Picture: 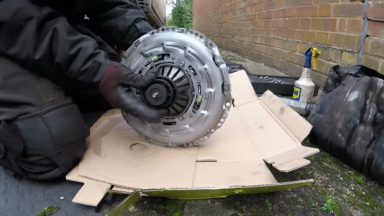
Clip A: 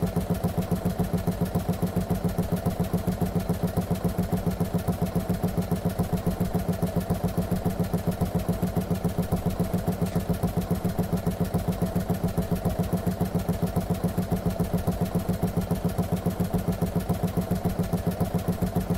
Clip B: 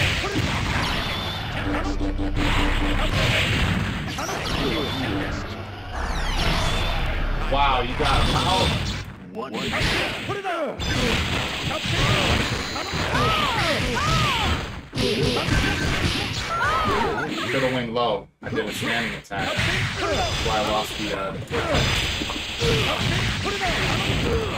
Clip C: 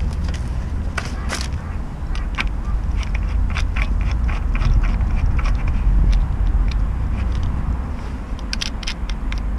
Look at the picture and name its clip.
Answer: C